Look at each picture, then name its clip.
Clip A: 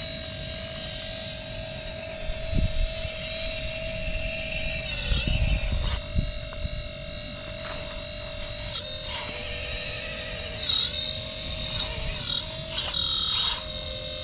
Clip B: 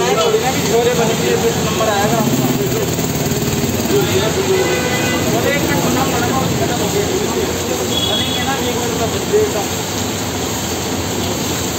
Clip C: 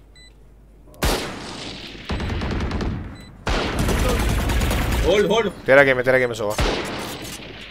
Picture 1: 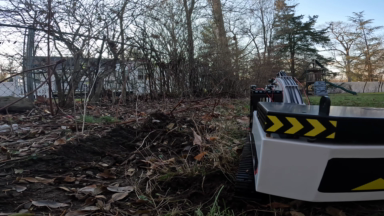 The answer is A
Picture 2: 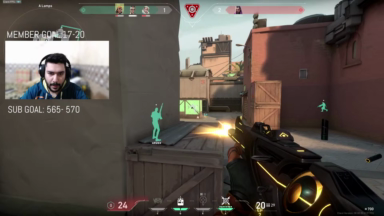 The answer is C